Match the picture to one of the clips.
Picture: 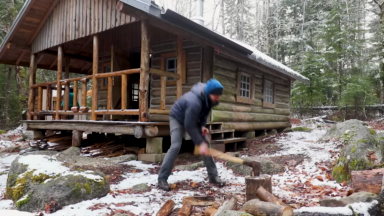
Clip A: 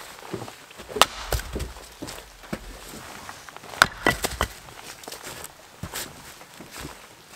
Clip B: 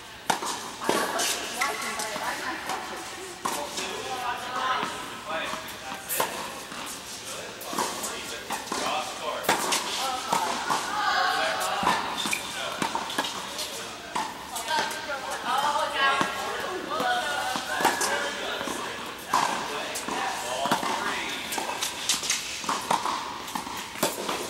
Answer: A